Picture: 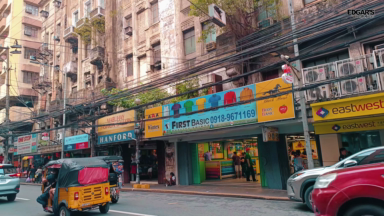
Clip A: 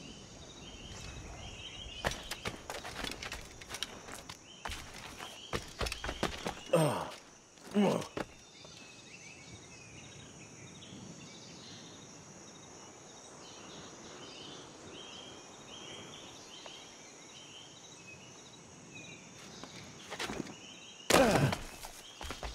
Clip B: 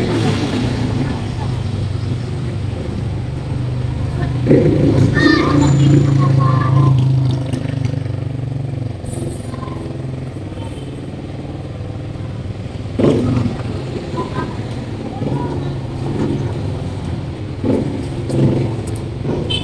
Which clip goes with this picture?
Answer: B